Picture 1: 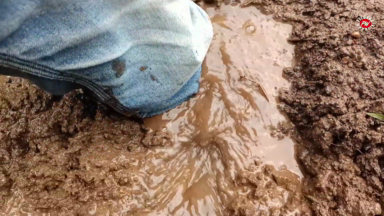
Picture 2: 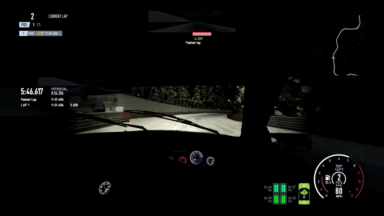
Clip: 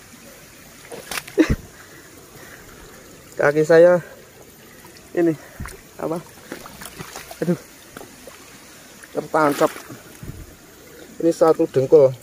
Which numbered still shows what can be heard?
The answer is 1